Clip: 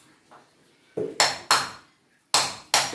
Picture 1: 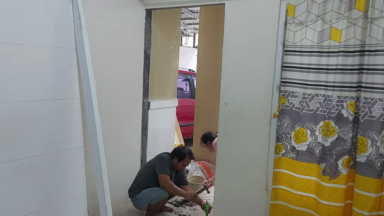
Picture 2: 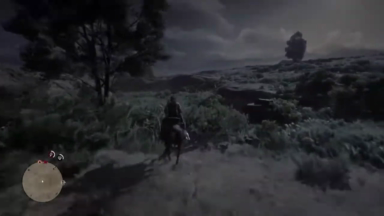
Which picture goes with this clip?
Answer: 1